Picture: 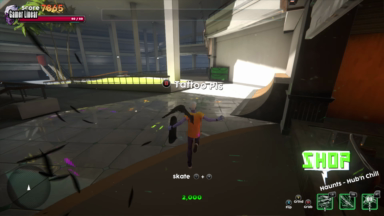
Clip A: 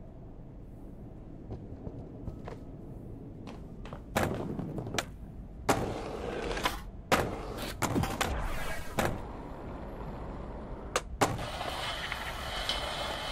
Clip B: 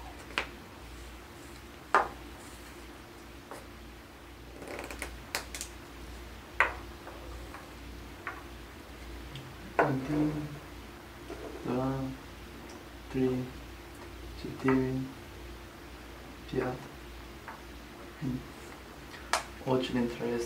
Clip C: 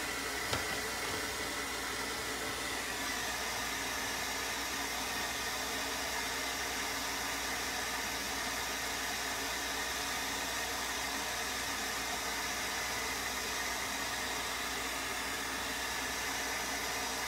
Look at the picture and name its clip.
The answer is A